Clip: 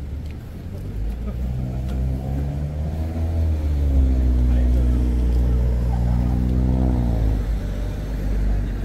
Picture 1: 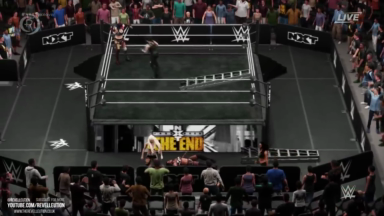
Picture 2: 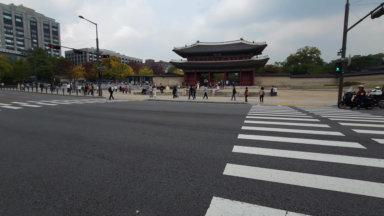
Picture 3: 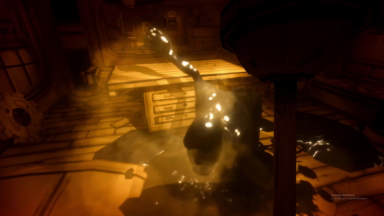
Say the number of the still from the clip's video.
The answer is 2